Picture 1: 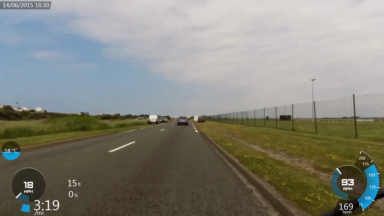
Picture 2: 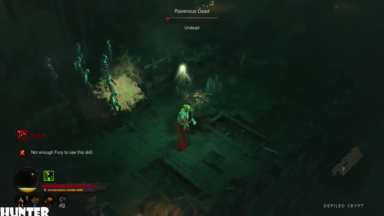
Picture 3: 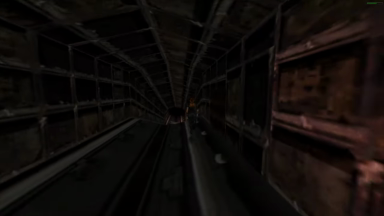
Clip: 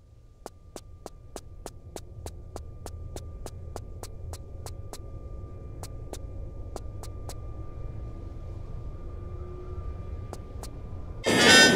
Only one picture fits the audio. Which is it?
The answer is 3